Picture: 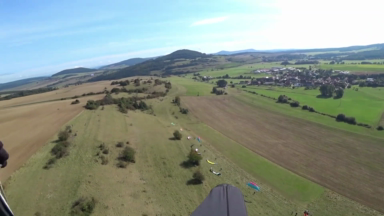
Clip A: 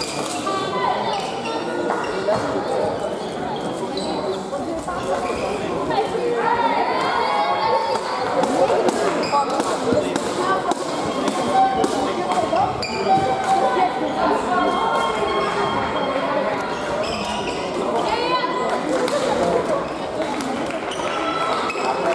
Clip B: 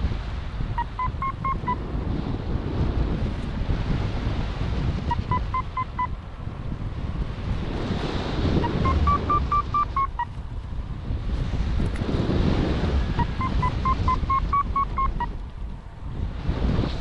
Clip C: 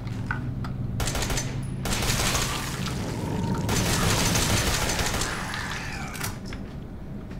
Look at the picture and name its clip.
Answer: B